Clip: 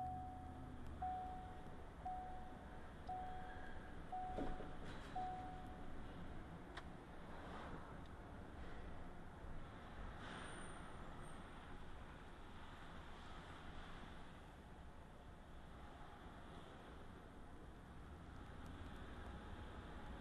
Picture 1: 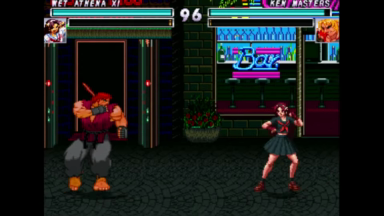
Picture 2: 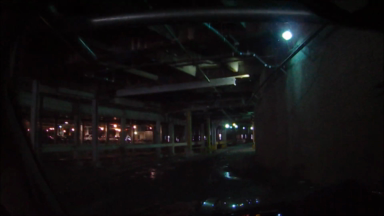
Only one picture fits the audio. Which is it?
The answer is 2